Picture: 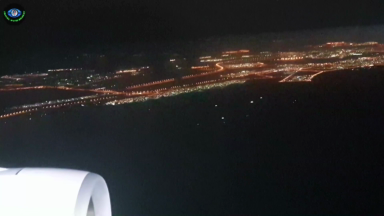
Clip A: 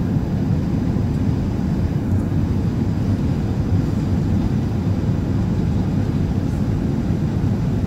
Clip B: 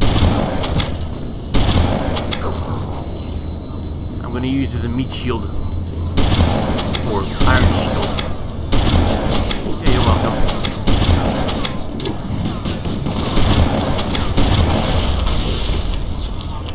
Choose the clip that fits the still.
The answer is A